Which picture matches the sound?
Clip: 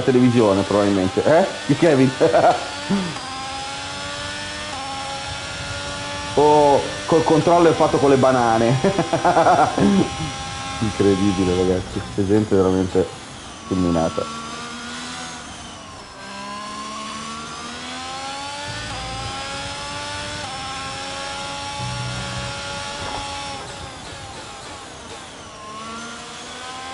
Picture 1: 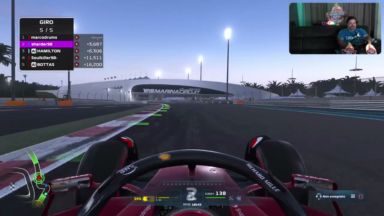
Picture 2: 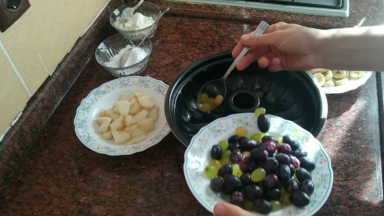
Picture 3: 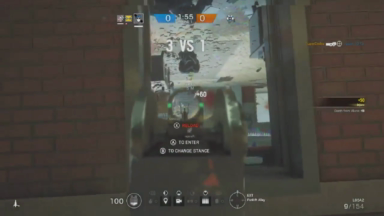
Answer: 1